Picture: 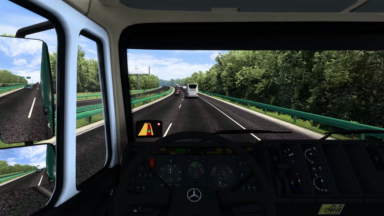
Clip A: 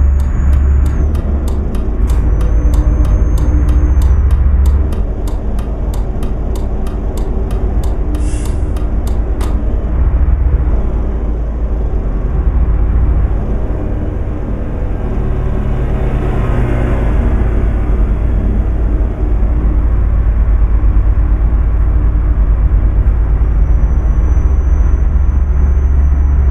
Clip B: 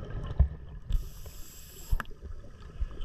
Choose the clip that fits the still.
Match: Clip A